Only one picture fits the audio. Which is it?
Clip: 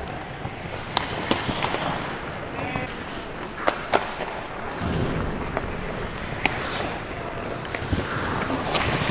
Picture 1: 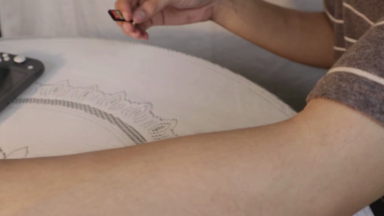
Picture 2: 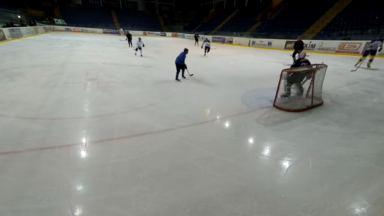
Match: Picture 2